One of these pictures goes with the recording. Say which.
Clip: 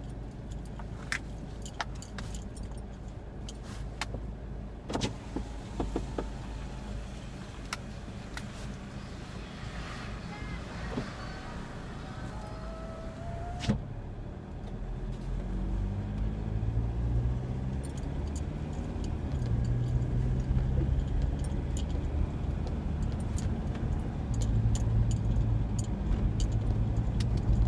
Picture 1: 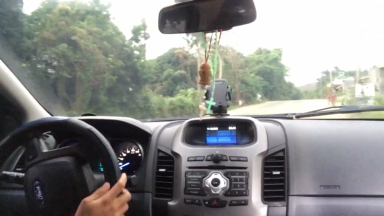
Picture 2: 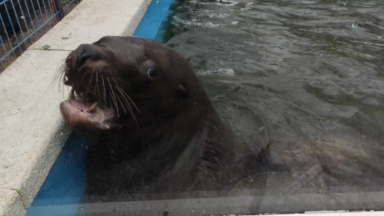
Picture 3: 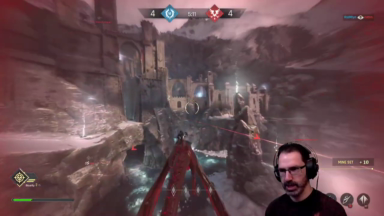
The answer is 1